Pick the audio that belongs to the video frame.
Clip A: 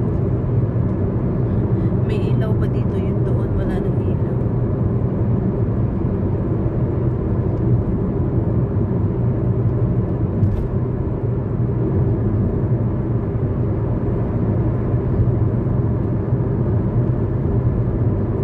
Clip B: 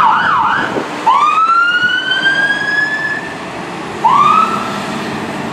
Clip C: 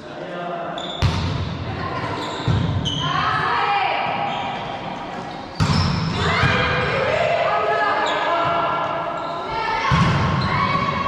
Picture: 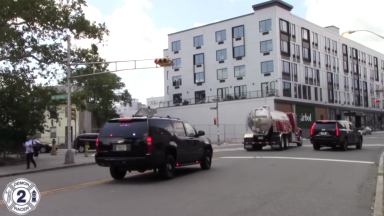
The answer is B